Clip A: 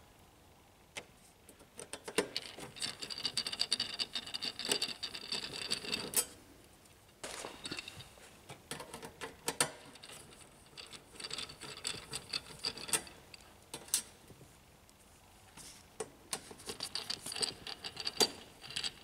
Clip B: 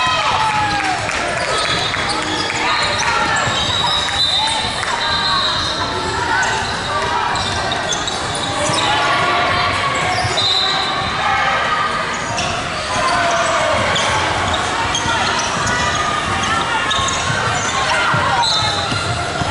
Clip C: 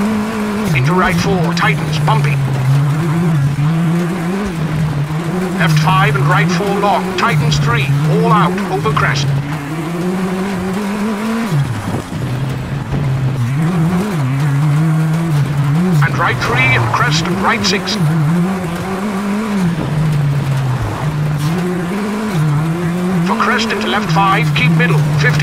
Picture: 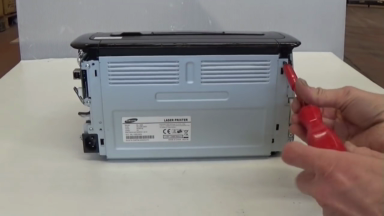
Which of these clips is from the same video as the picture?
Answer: A